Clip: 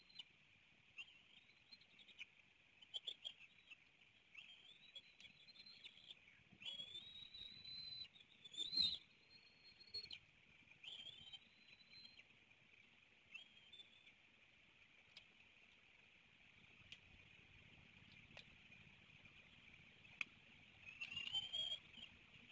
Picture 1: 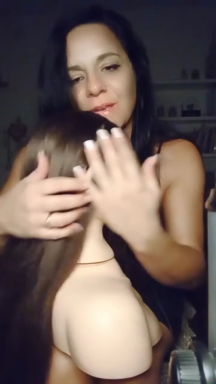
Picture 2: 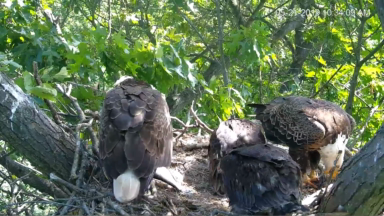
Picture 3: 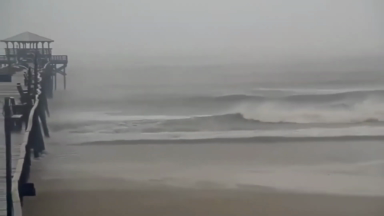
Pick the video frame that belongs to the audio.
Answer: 2